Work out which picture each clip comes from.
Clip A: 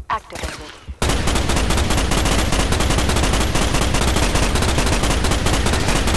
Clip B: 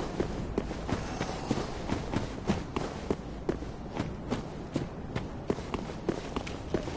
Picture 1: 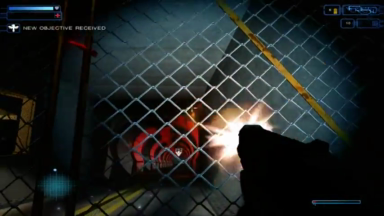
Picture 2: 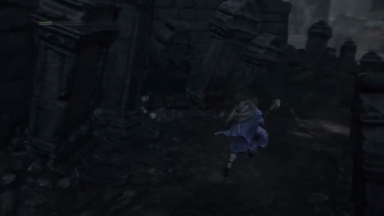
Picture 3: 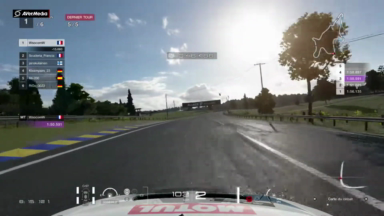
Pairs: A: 1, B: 2